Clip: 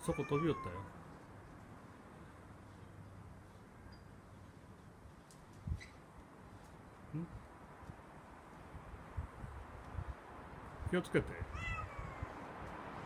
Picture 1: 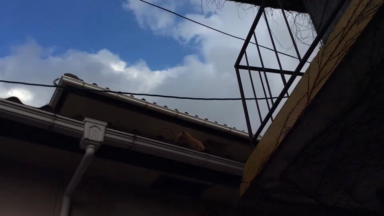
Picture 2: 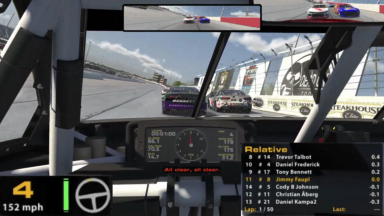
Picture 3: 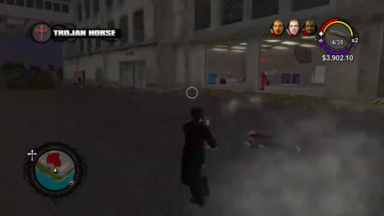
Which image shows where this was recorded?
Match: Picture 1